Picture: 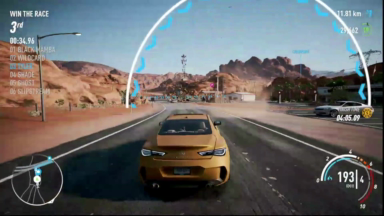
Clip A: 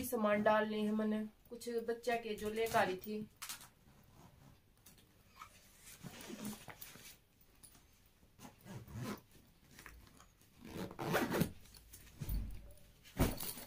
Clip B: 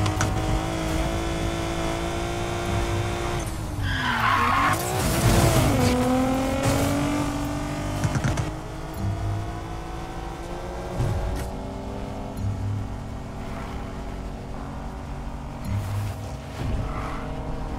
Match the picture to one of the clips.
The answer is B